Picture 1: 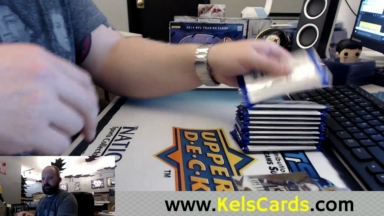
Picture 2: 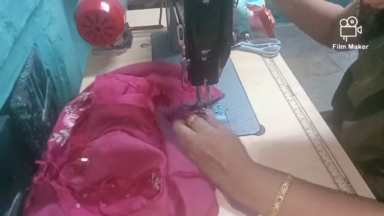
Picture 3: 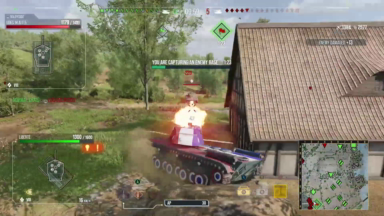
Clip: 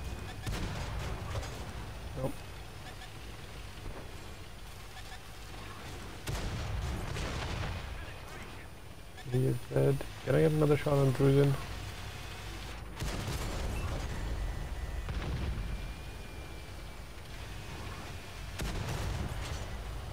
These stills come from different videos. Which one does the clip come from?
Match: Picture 3